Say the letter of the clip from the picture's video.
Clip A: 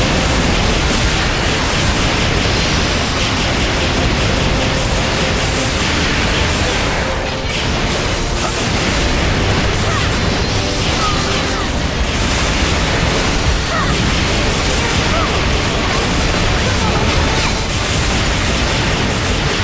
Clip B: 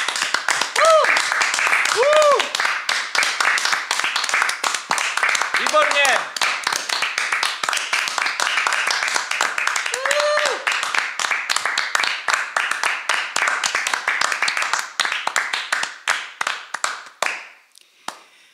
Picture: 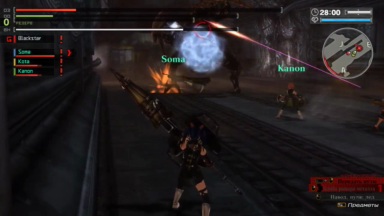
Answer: A